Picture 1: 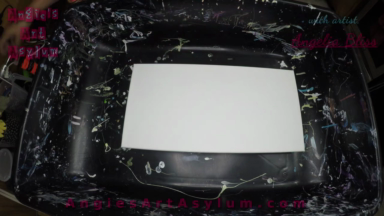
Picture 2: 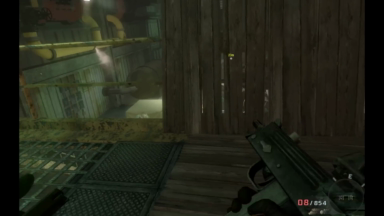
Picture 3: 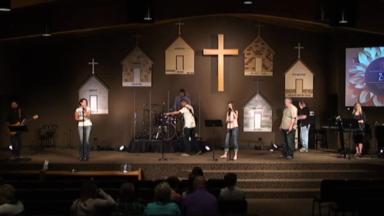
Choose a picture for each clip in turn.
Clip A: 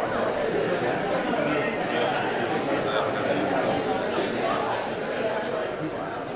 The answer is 3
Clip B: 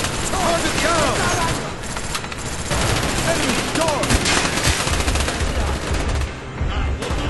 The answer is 2